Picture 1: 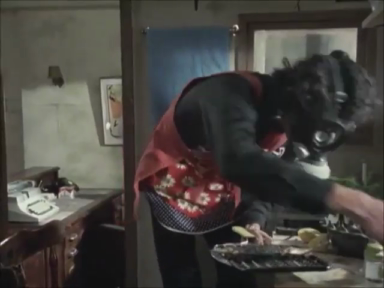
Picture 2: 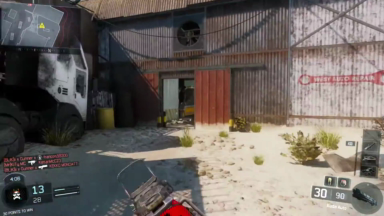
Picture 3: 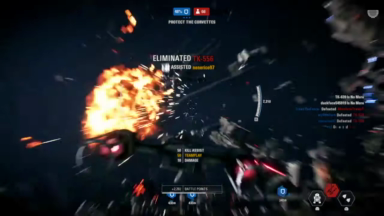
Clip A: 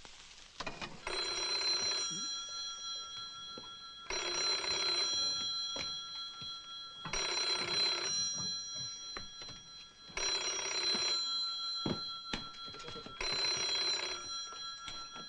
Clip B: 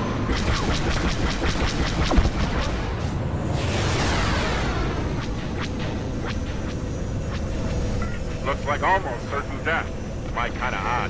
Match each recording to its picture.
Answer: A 1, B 3